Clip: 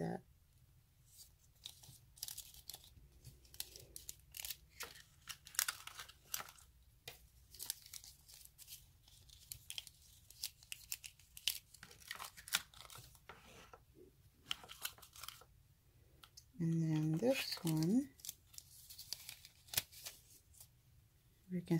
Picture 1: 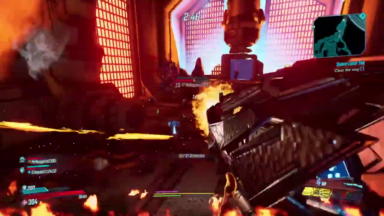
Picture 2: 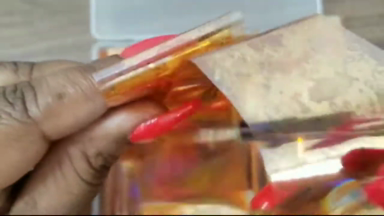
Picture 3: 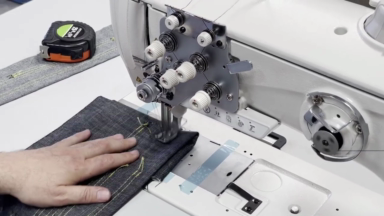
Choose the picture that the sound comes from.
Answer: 2